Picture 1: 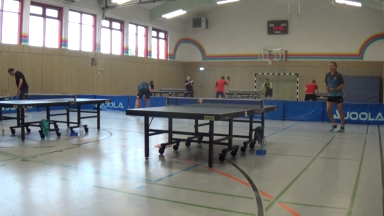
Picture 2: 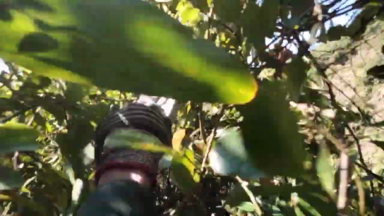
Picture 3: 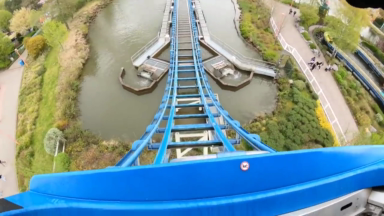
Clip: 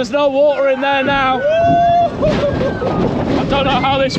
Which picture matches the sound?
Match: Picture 3